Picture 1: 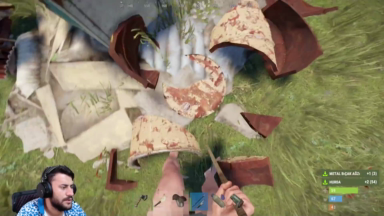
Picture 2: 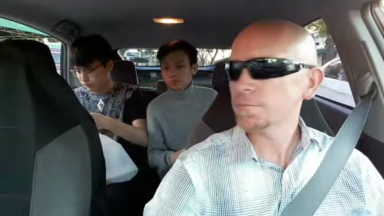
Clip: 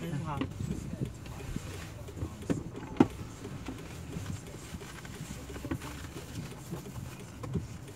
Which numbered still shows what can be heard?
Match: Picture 2